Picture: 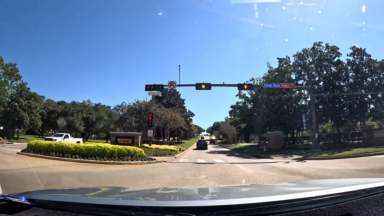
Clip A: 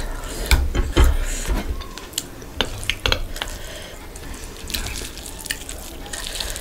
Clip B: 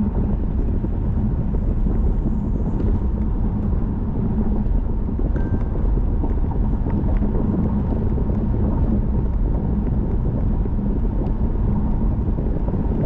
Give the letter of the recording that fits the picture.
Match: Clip B